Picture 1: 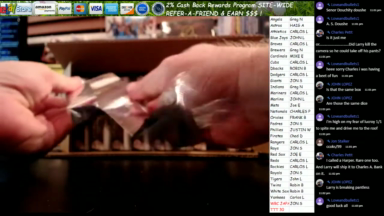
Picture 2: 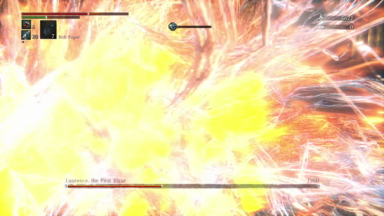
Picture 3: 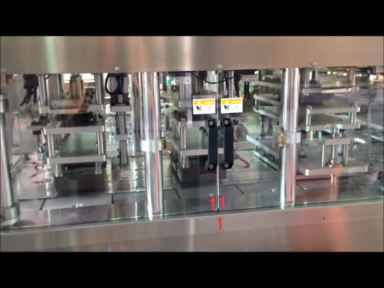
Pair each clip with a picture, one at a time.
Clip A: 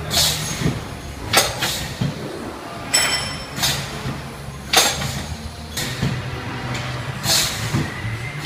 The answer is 3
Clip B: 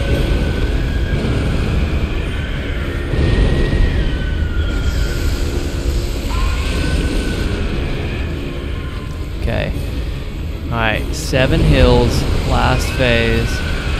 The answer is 2